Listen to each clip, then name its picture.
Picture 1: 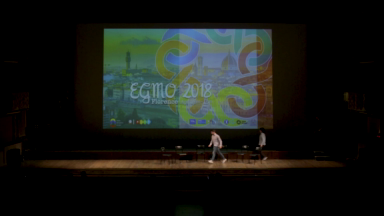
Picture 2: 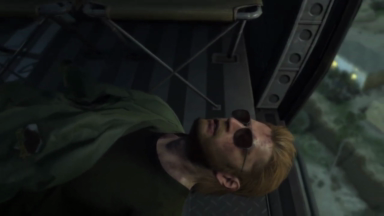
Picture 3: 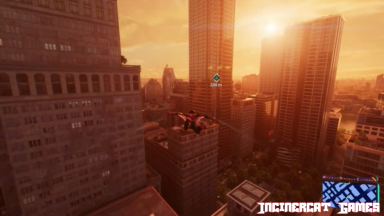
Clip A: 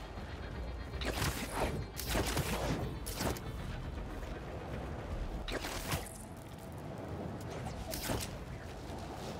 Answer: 3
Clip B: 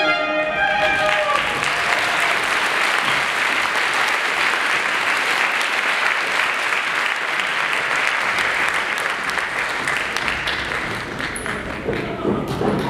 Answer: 1